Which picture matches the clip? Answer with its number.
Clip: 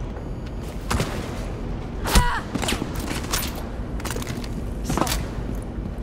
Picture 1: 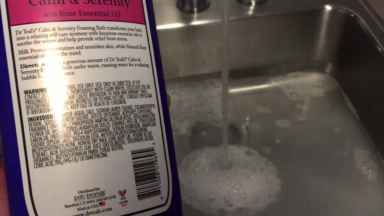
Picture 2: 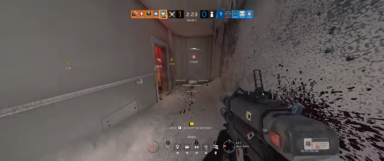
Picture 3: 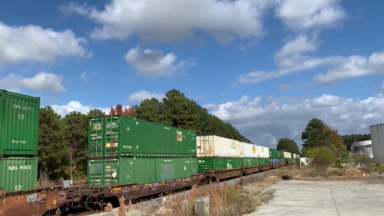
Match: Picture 2